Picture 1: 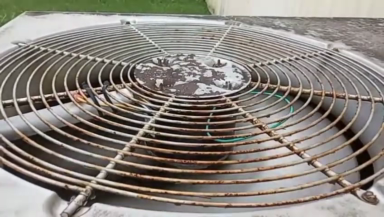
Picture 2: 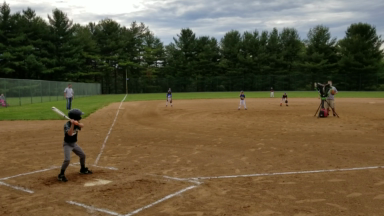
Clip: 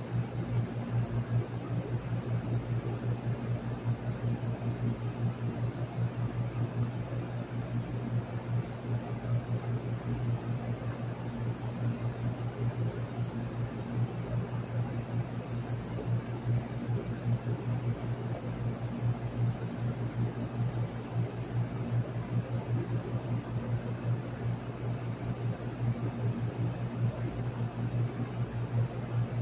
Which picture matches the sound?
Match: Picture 1